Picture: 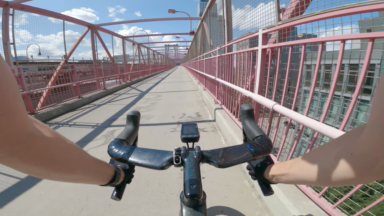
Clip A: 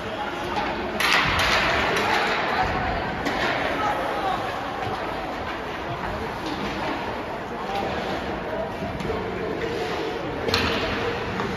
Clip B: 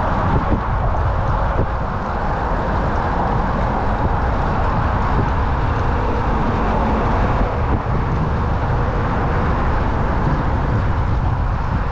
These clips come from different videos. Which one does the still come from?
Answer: B